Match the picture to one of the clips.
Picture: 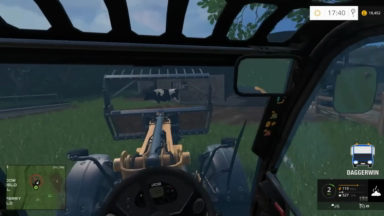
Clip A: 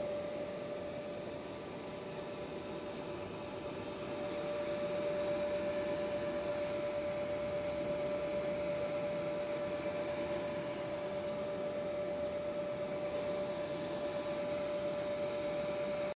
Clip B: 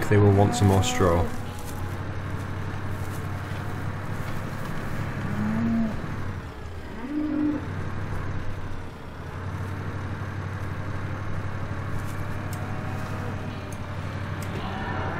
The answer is B